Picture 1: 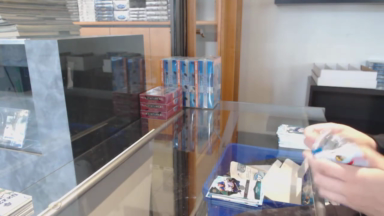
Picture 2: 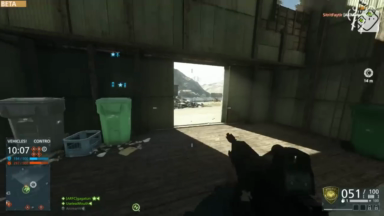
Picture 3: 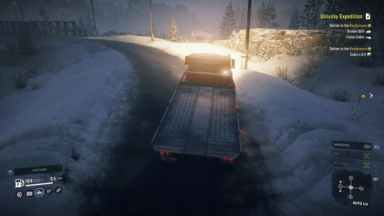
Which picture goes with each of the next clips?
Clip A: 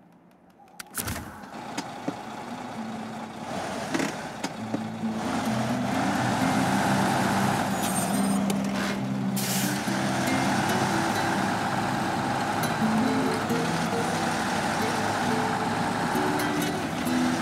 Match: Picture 3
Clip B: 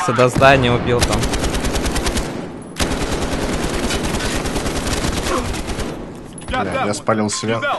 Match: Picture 2